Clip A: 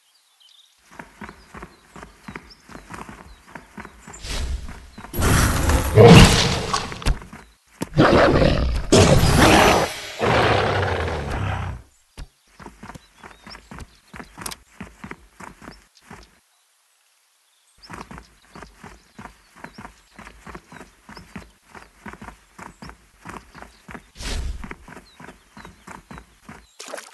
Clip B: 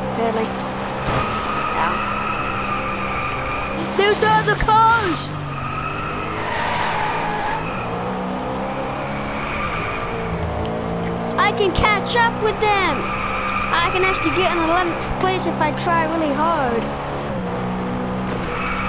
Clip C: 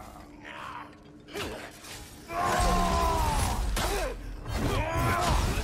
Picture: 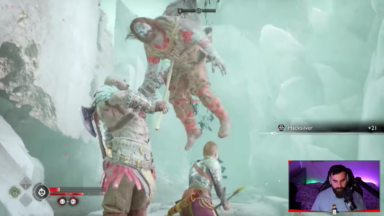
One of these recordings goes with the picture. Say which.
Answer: C